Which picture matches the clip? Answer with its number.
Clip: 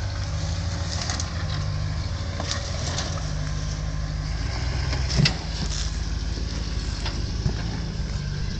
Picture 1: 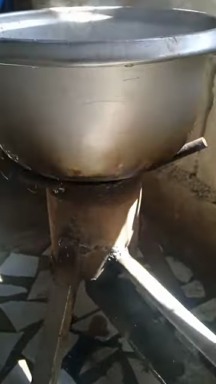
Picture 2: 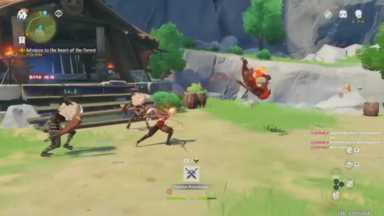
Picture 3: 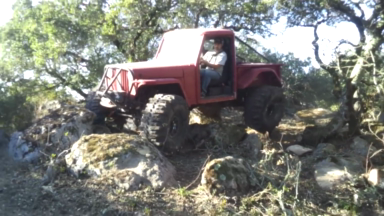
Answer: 3